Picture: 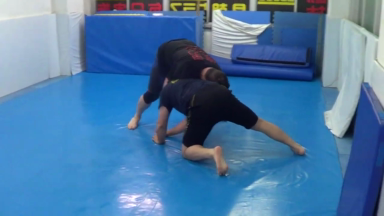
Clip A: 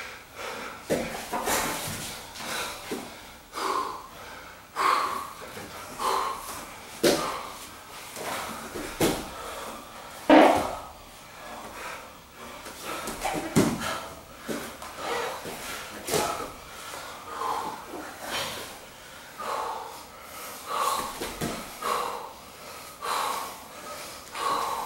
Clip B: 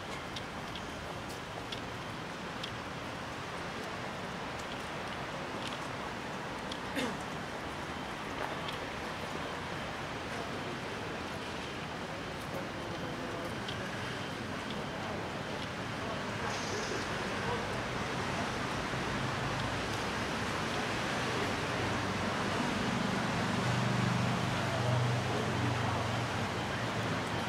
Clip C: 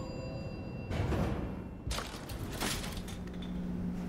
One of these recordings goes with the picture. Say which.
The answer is A